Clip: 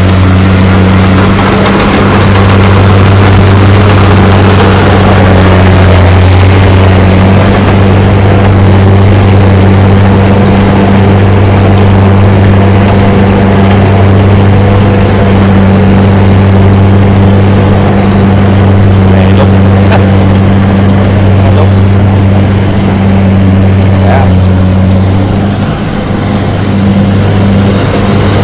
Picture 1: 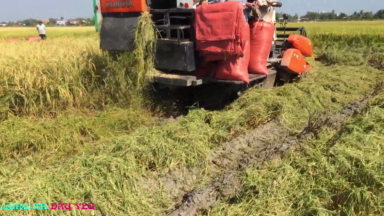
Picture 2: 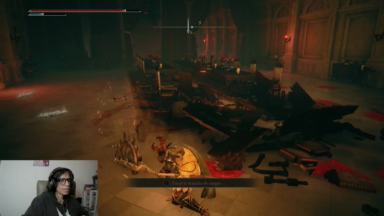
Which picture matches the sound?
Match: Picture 1